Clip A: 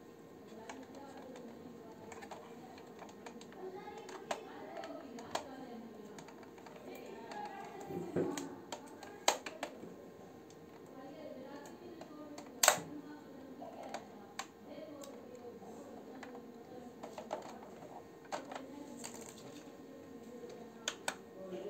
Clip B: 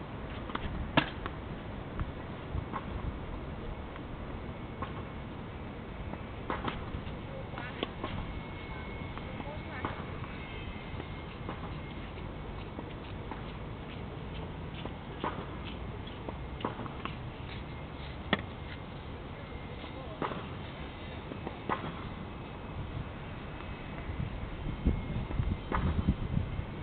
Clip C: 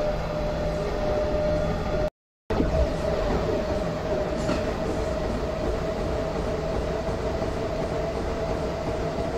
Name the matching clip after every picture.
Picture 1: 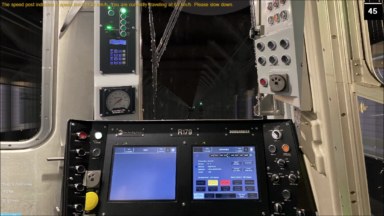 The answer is C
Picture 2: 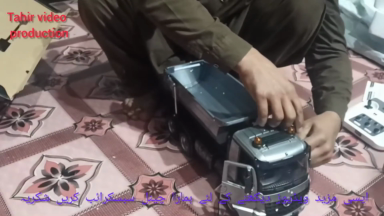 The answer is A